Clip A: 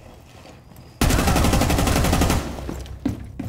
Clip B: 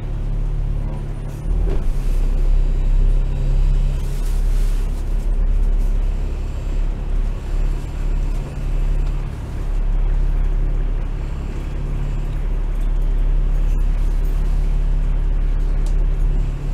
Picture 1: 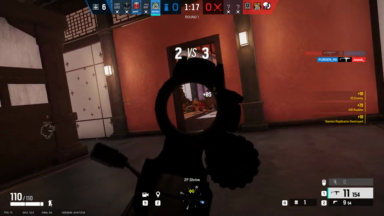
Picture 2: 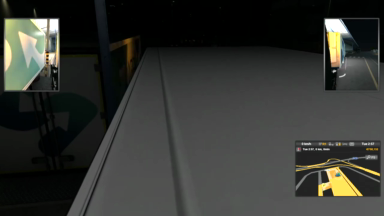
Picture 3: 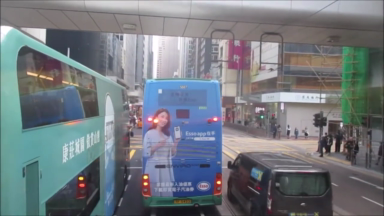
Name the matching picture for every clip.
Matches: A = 1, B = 3